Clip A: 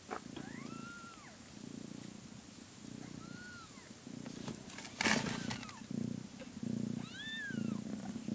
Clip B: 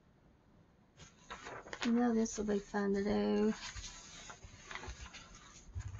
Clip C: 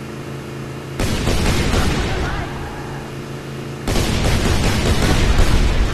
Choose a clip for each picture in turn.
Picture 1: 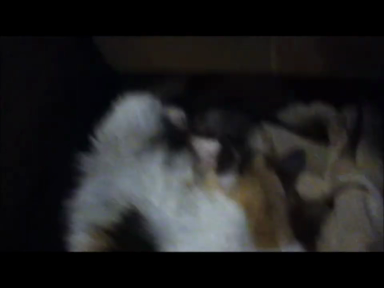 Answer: A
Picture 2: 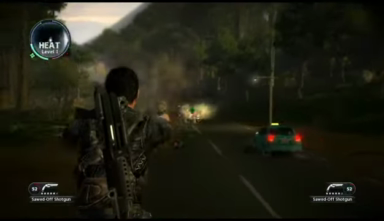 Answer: C